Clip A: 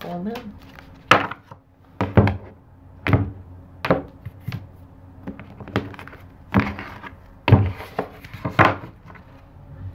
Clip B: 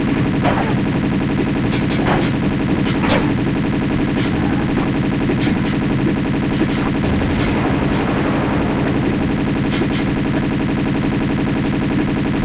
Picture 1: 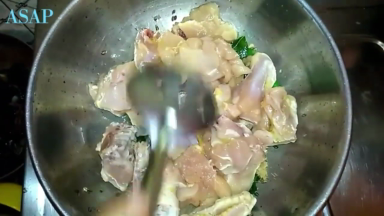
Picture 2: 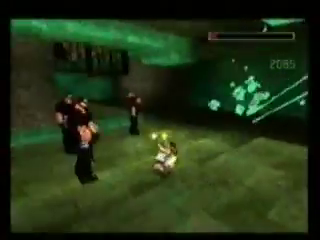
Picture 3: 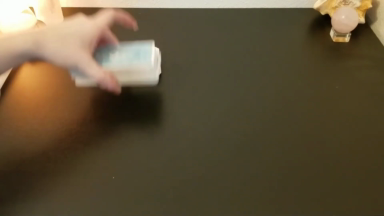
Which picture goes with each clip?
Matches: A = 3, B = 2